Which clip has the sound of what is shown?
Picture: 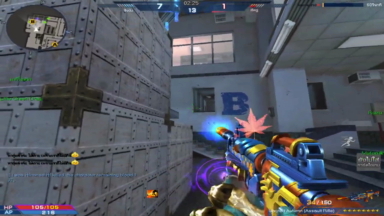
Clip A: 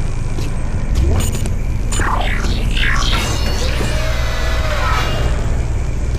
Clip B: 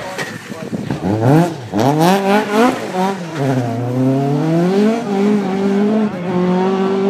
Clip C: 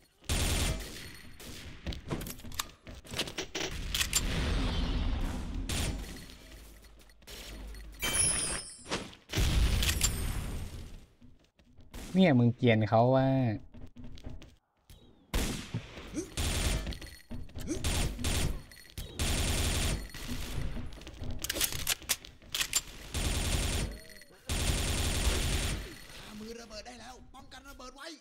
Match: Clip C